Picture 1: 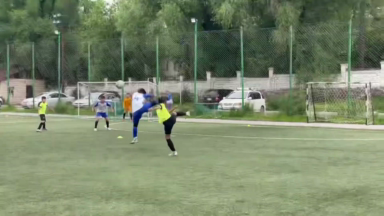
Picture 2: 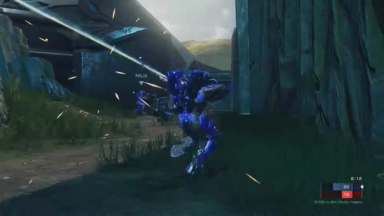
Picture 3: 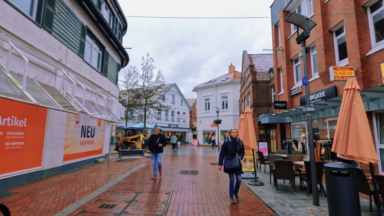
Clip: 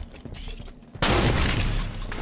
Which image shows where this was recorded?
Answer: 2